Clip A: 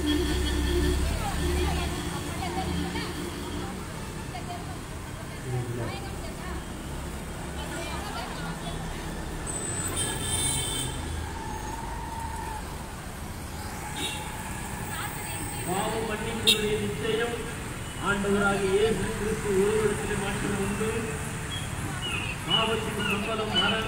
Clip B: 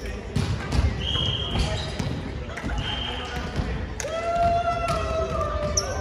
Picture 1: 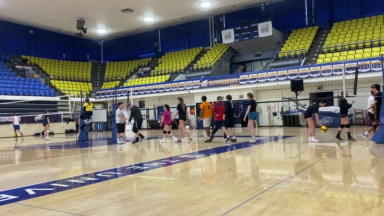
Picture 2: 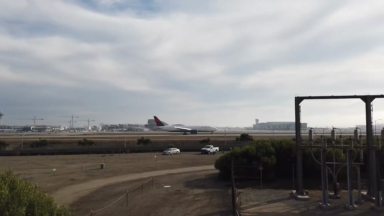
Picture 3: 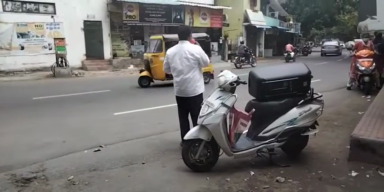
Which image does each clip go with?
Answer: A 3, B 1